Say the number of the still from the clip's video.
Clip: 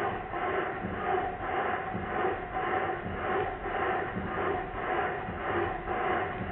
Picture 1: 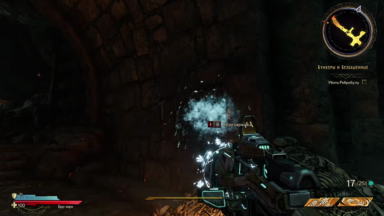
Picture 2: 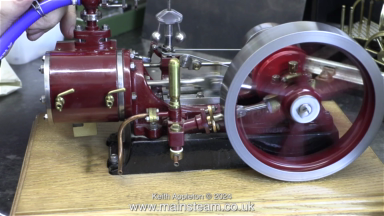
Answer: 2